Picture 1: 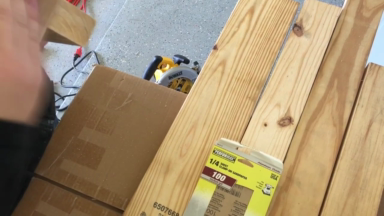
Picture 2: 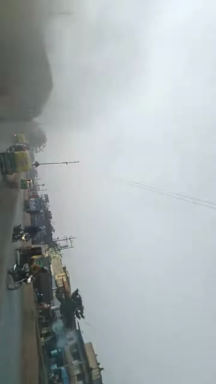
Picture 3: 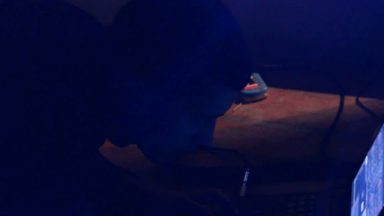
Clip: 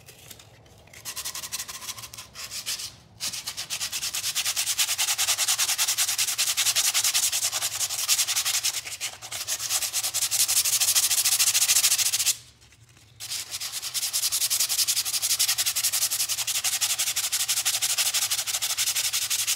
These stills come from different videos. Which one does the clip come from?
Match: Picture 1